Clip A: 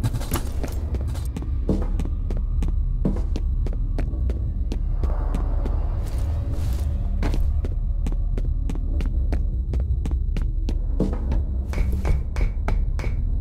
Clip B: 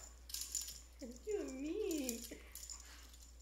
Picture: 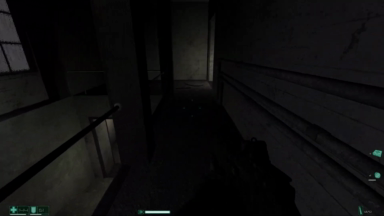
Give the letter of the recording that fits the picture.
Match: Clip A